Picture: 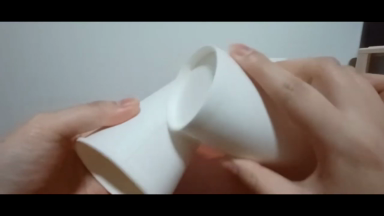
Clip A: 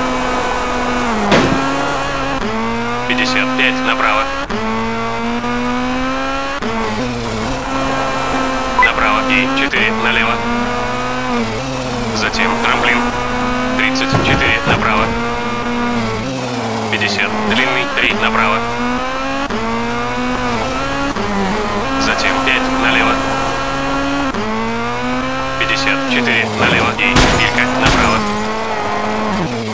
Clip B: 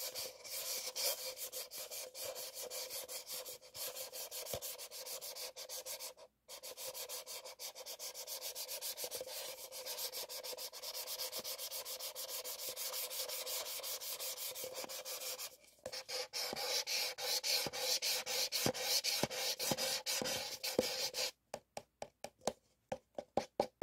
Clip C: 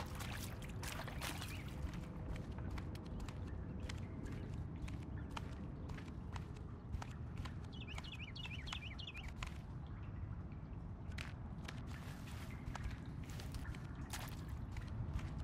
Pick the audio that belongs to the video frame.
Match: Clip B